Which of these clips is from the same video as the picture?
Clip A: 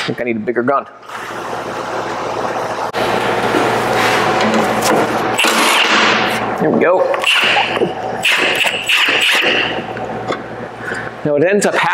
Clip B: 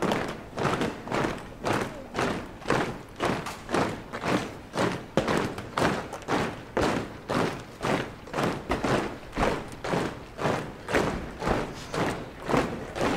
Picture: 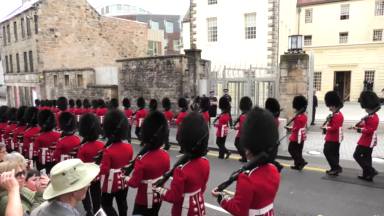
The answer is B